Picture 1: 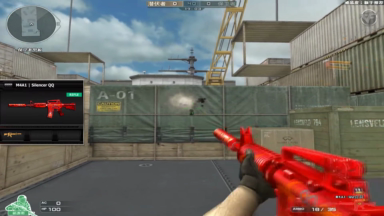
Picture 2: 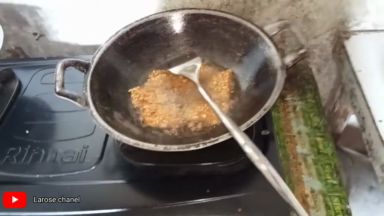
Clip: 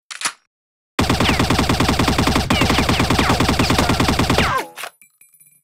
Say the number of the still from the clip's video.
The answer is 1